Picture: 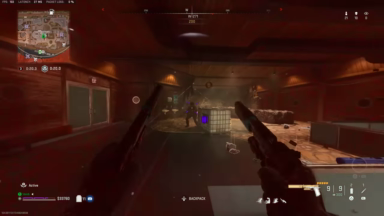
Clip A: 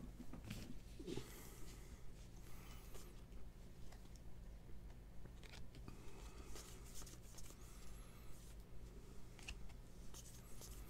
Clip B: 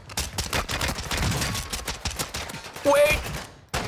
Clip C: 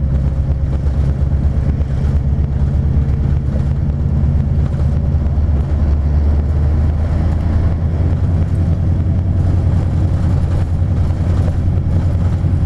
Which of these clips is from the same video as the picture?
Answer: B